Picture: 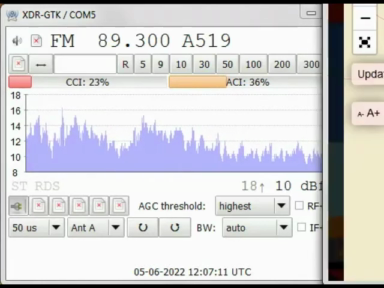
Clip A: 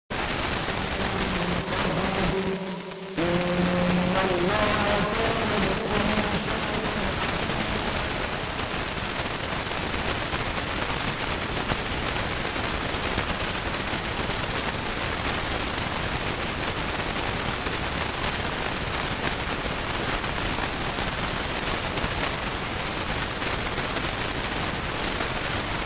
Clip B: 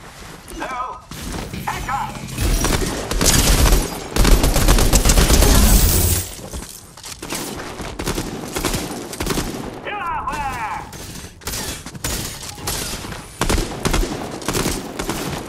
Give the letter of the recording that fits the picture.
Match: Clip A